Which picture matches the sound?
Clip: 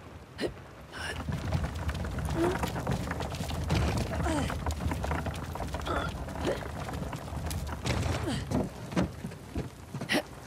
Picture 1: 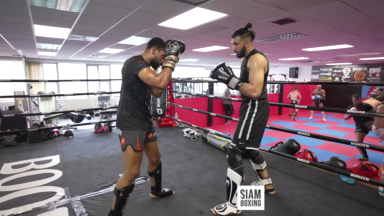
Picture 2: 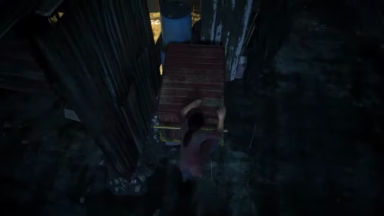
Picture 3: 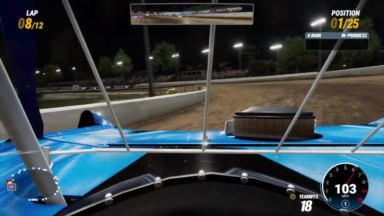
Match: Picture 2